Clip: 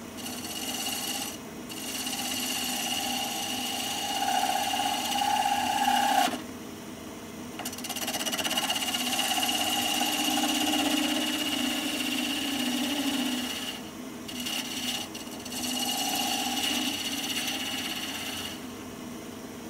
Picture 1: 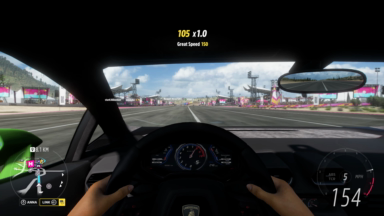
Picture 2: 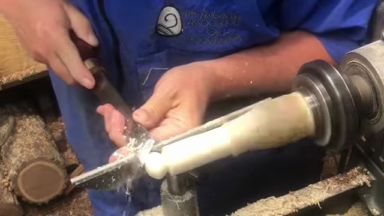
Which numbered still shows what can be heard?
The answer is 2